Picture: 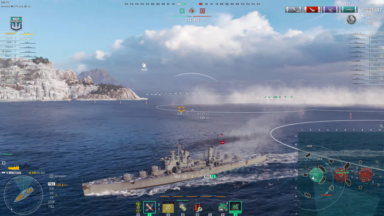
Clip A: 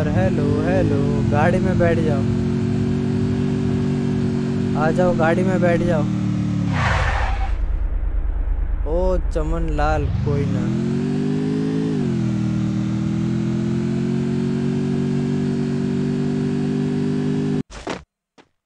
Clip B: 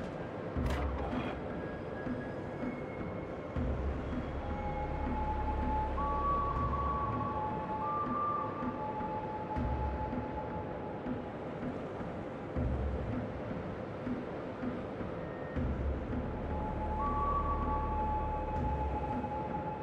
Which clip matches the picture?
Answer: B